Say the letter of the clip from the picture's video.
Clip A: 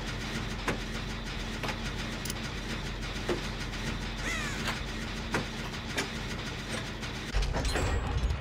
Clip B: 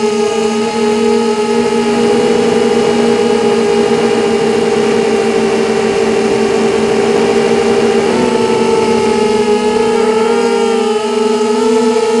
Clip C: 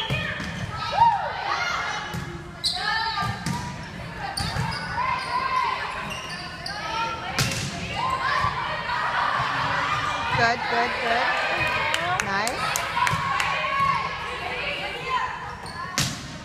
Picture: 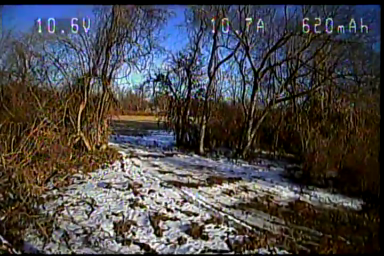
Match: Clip B